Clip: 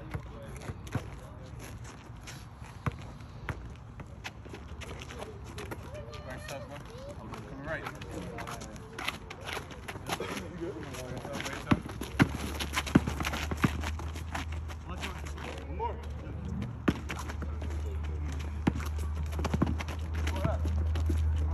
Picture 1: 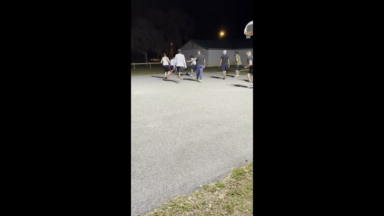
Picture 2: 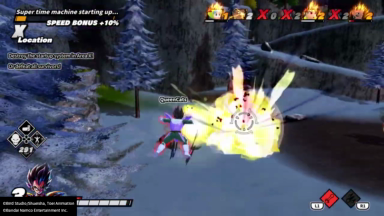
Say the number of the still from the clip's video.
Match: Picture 1